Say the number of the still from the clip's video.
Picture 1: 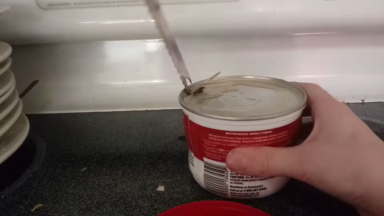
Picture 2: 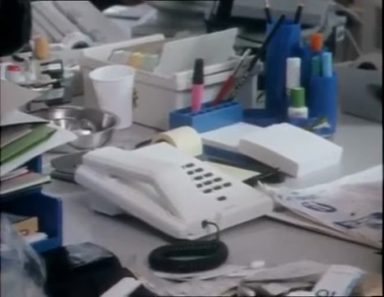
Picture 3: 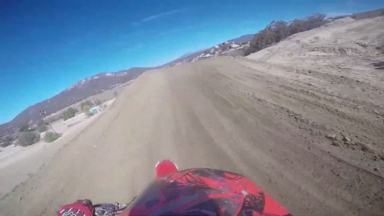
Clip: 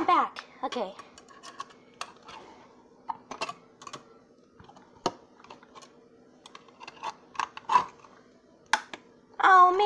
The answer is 1